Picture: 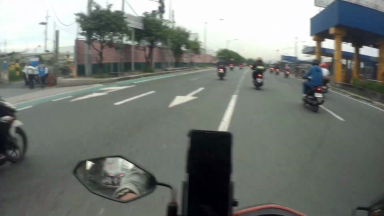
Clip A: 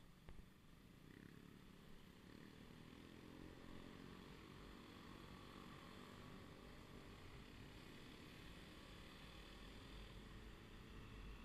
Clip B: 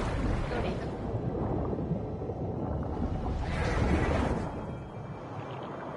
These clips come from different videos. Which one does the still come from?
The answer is A